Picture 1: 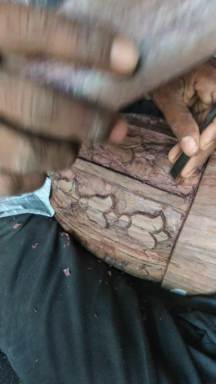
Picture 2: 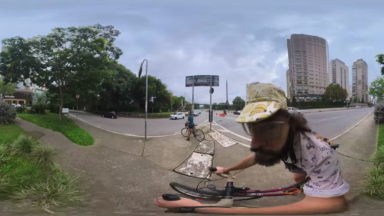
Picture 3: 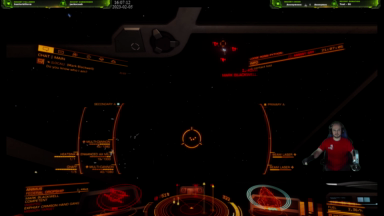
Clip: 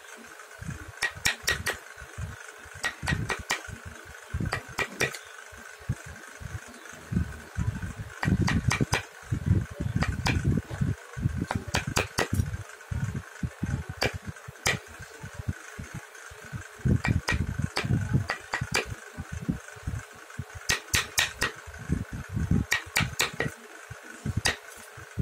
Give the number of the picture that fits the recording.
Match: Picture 1